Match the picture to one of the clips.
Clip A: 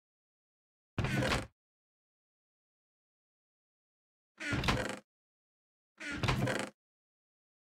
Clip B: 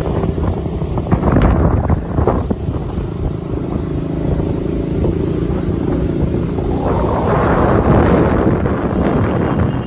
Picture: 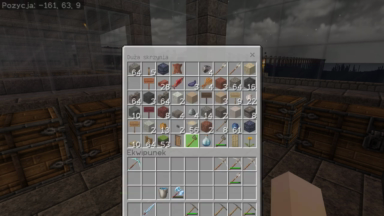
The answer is A